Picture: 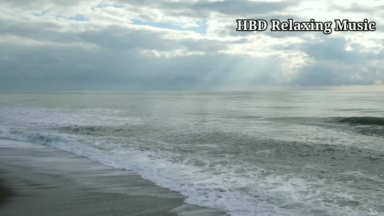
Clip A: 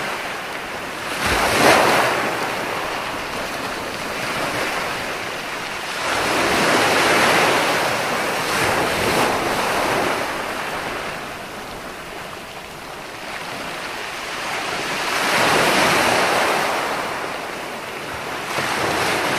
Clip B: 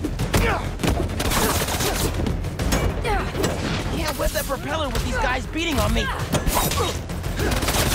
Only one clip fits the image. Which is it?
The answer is A